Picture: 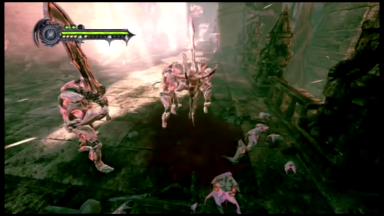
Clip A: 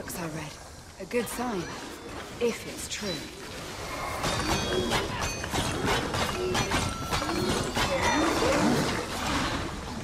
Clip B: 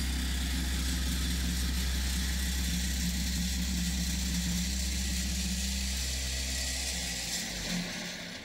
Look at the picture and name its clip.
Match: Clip A